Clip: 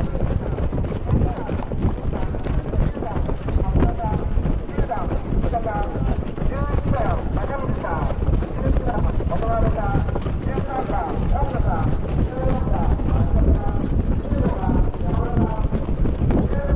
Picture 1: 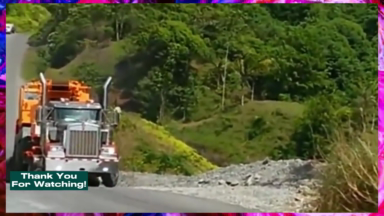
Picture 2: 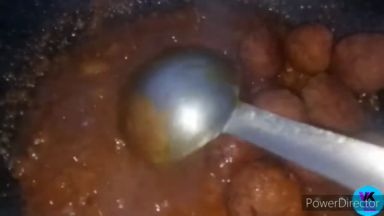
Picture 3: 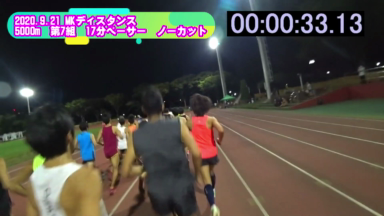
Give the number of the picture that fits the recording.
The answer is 3